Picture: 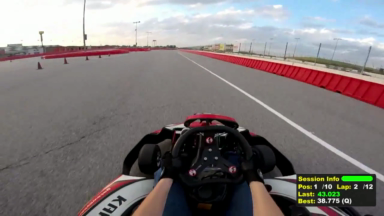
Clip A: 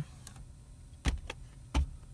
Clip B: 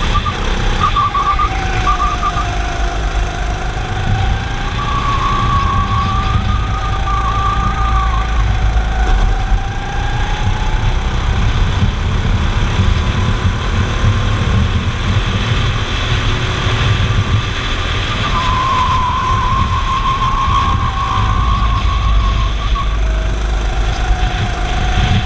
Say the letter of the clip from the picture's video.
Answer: B